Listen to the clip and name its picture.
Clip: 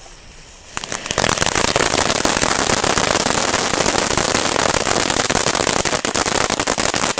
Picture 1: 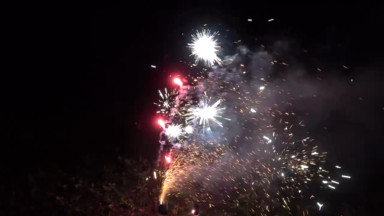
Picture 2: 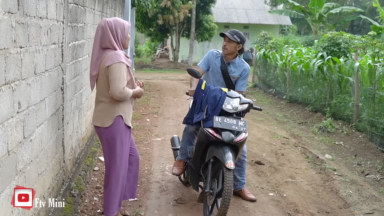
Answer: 1